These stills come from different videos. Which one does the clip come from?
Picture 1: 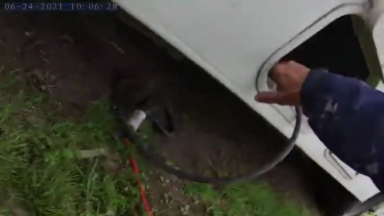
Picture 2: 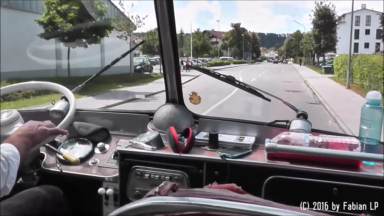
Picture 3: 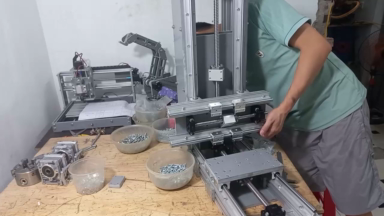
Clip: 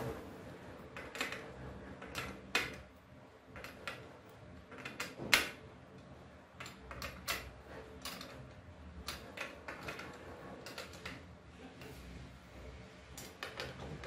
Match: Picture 3